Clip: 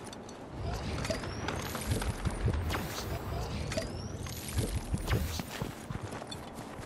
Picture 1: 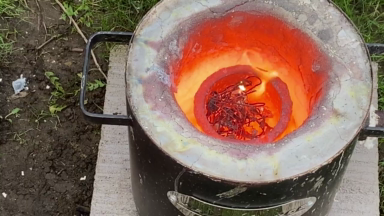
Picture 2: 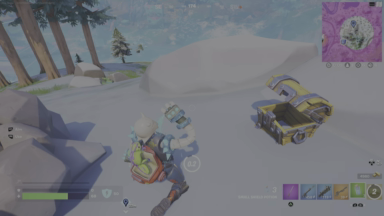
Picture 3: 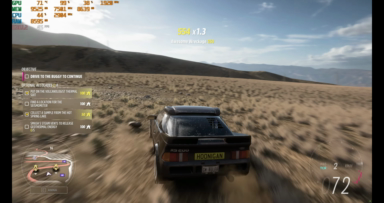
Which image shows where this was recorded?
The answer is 2